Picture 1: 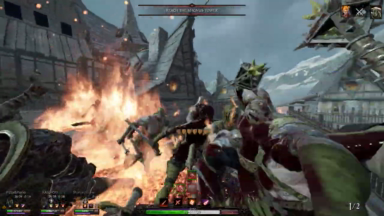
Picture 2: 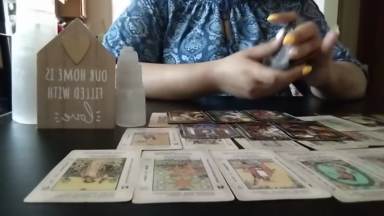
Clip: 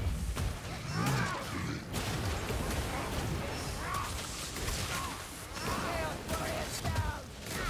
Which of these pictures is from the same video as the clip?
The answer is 1